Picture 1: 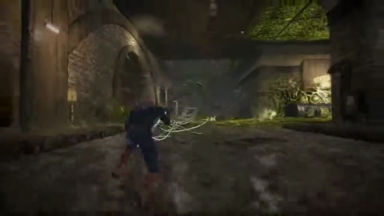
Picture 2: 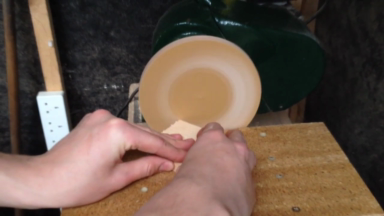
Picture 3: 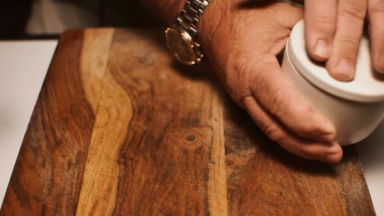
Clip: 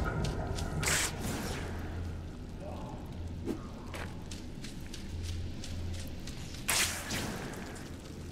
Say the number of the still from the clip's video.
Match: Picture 1